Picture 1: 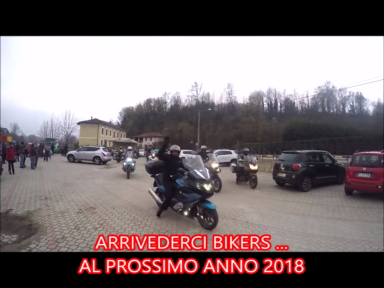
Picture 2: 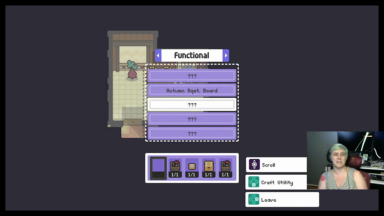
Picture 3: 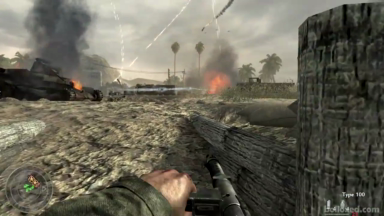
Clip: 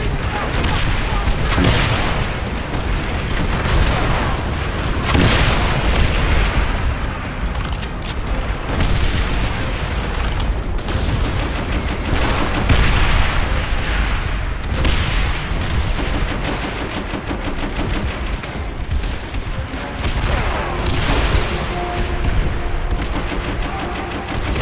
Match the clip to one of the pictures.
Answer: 3